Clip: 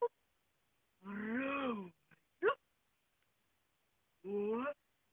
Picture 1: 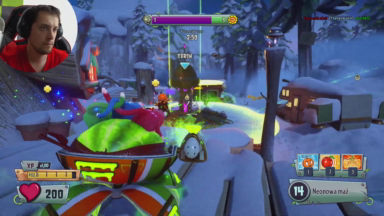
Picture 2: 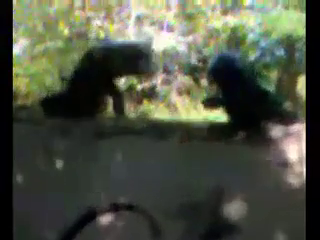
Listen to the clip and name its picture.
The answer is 2